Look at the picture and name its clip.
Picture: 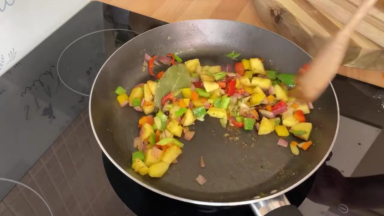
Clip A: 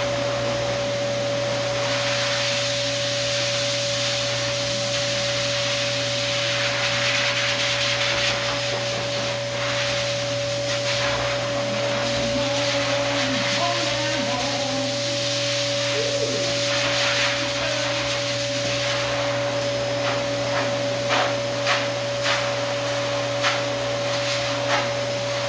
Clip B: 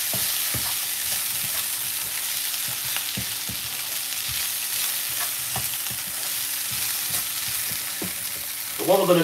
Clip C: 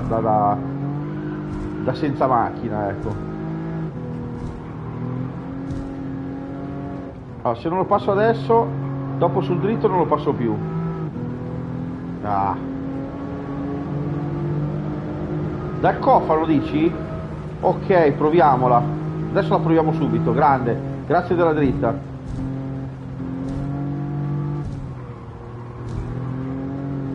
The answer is B